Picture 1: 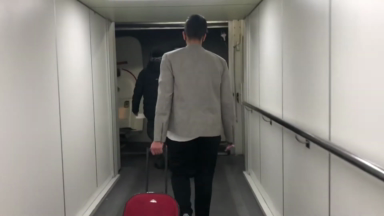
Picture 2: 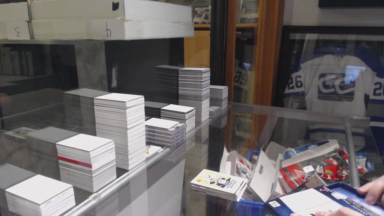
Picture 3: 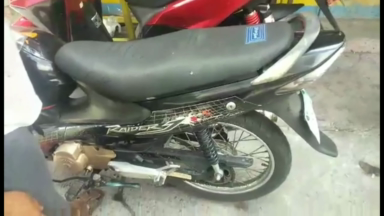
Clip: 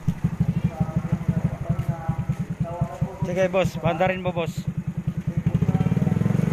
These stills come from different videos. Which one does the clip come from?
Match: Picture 3